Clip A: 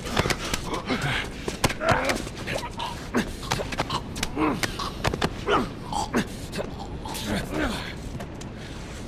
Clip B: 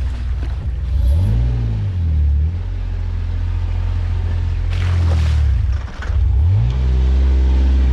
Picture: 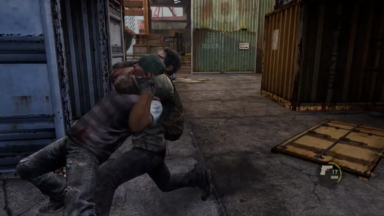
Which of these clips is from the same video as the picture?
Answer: A